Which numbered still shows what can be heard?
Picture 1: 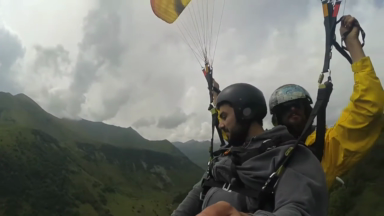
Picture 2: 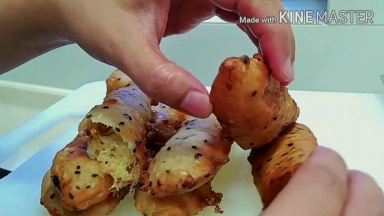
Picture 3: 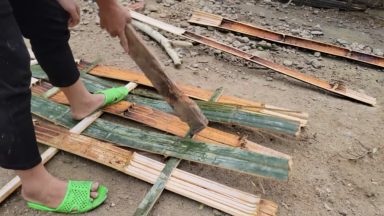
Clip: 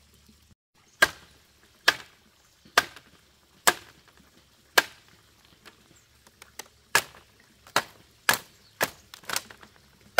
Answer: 3